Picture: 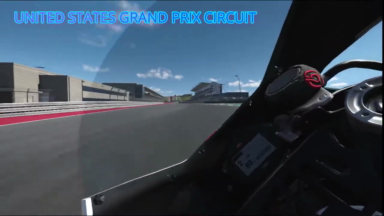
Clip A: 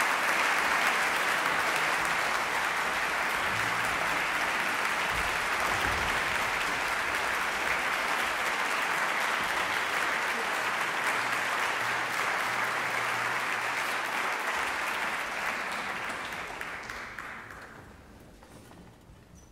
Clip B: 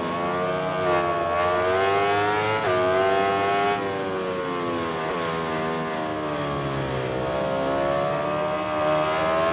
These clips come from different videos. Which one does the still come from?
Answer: B